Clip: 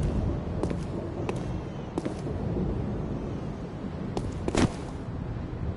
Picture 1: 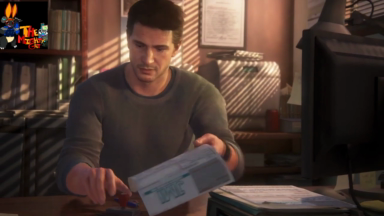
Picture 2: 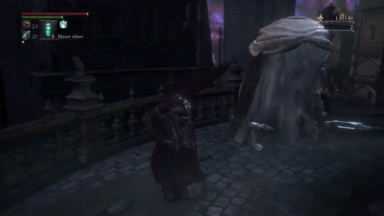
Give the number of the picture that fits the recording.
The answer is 2